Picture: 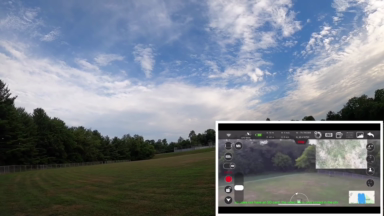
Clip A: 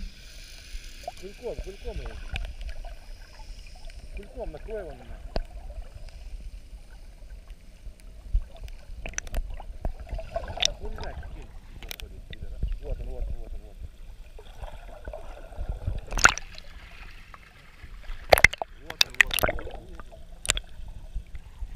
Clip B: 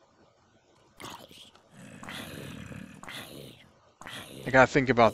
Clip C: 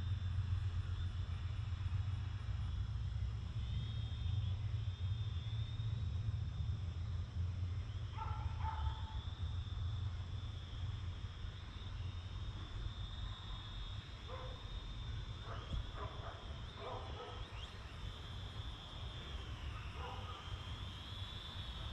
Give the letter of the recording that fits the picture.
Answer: C